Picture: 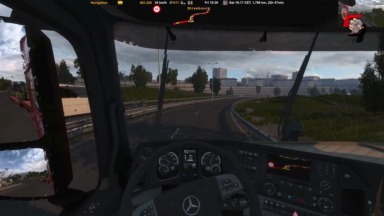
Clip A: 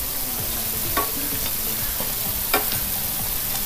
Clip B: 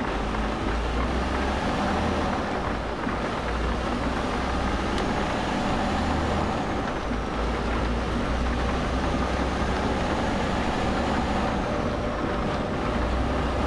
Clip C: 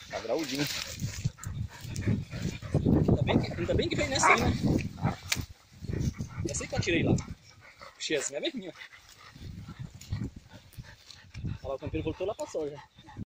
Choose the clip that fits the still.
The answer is B